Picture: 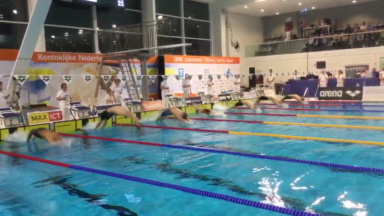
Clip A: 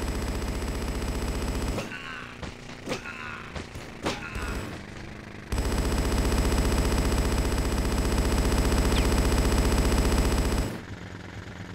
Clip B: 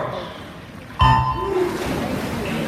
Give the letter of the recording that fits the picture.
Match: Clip B